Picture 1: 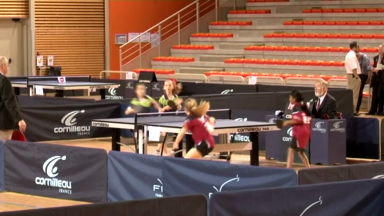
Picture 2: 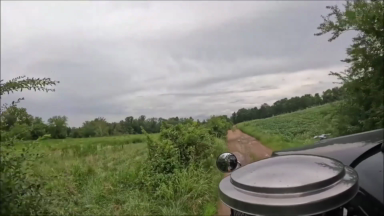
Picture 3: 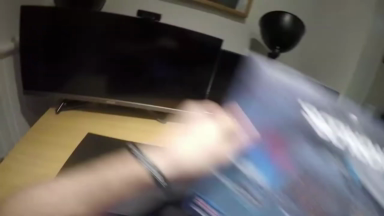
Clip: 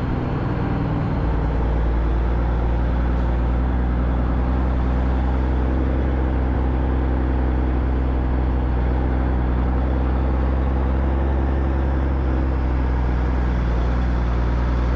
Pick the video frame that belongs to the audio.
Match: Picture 2